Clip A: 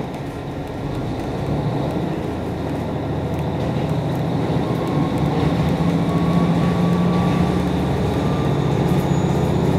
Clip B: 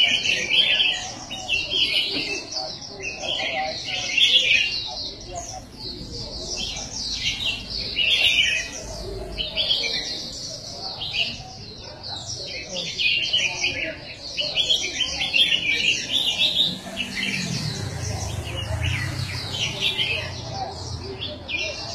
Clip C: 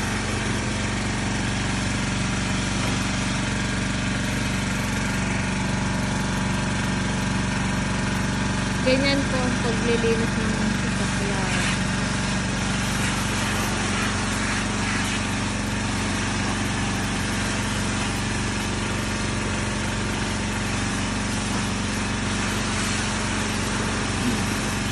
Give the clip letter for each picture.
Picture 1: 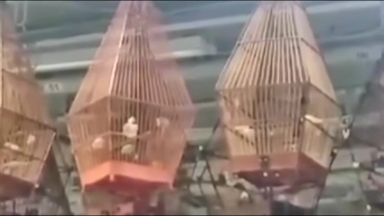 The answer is B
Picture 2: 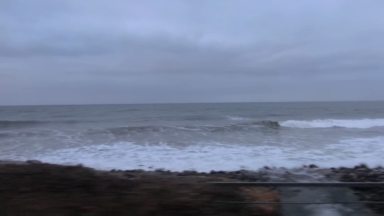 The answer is A